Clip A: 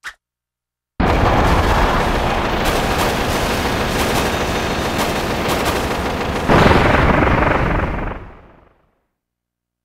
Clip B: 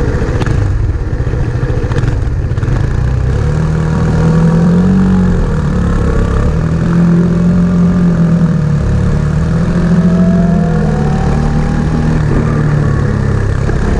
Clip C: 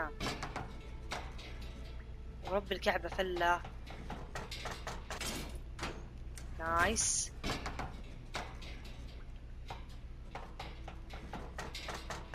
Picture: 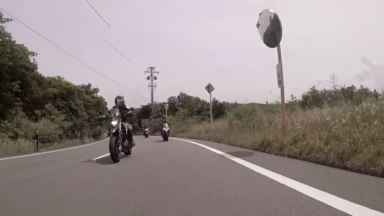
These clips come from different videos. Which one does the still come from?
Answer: B